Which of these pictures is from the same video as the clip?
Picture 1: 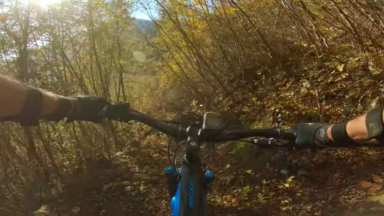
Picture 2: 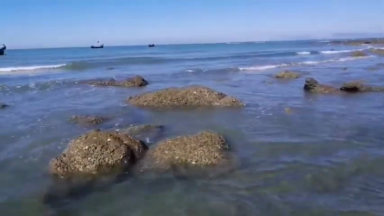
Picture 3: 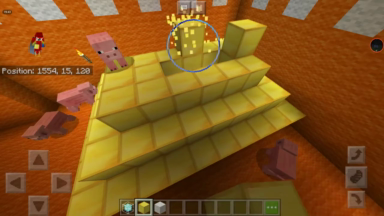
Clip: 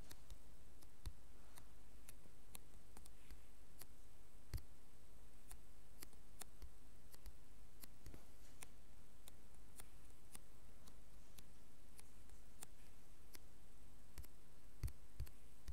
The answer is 3